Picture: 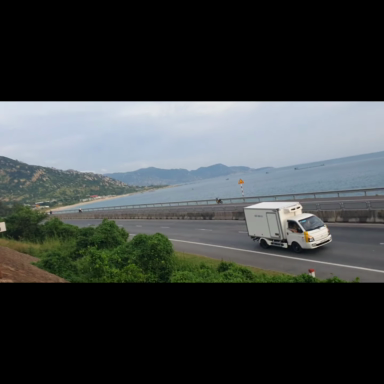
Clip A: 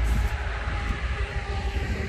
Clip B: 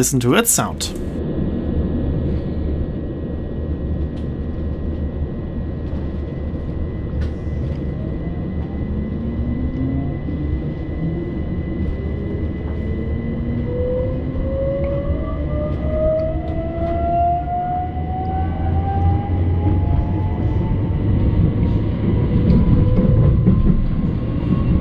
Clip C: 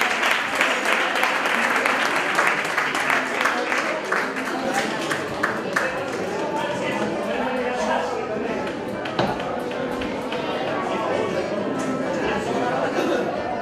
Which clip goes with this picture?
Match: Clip A